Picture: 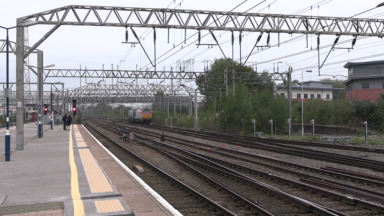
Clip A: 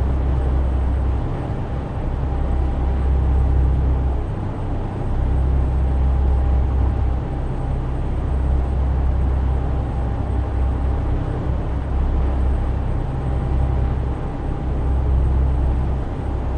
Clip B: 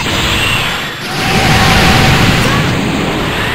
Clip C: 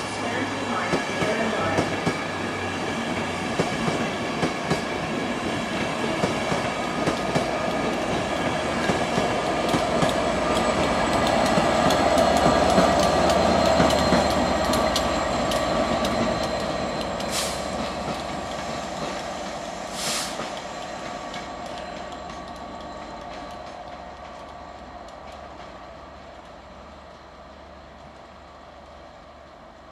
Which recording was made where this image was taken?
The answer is C